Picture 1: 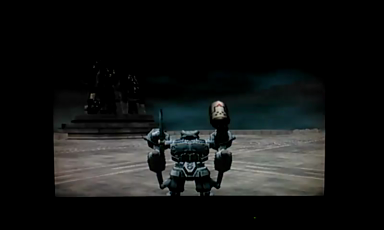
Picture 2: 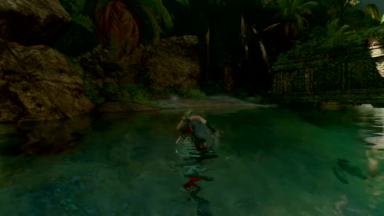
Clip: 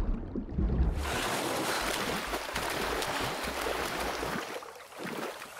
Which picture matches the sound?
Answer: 2